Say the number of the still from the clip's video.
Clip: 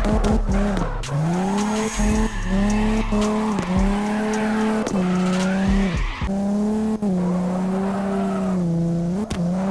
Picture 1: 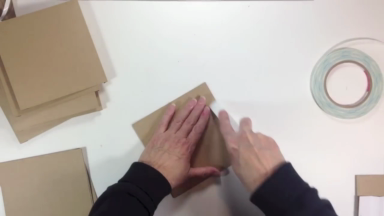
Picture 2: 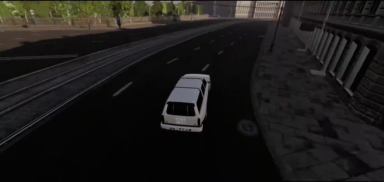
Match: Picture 2